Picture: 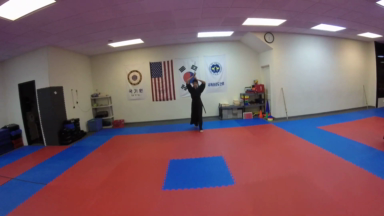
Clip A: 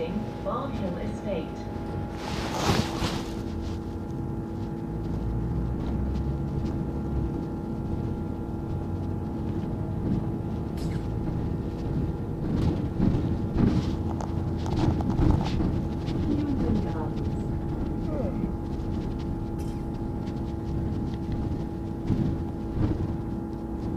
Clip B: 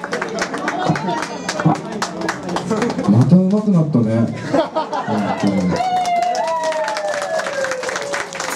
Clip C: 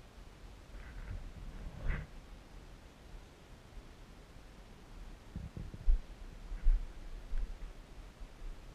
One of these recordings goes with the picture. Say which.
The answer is C